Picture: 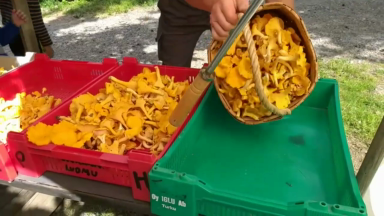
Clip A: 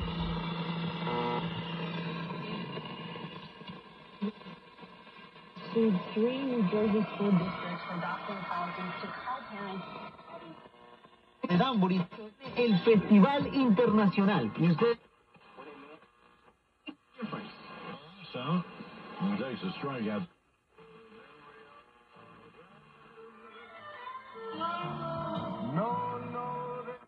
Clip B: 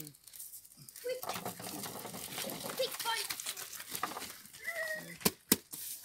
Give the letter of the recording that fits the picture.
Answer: B